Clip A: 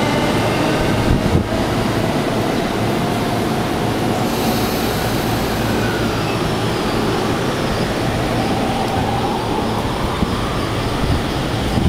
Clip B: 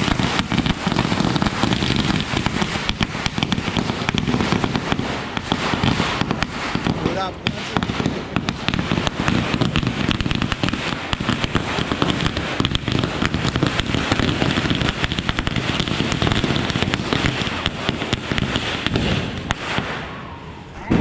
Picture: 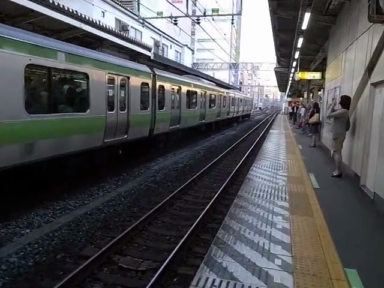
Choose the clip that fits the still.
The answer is A